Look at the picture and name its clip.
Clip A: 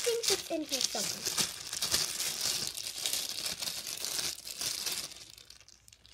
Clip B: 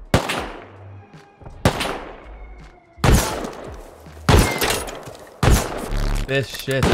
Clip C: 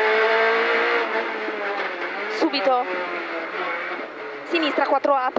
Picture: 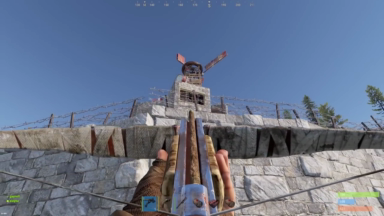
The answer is B